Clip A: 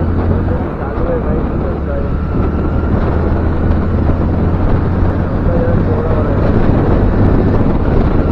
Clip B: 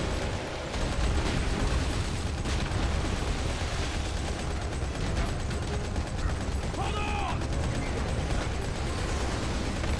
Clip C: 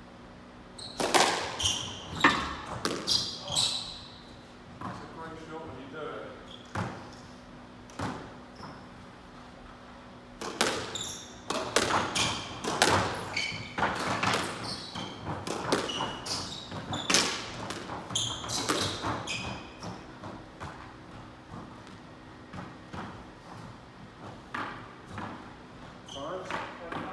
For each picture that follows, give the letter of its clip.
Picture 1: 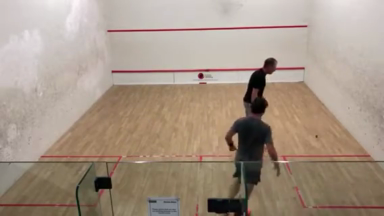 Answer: C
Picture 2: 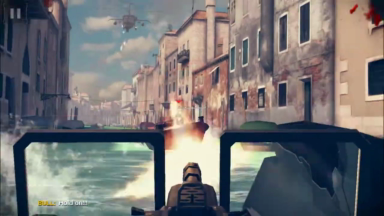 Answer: B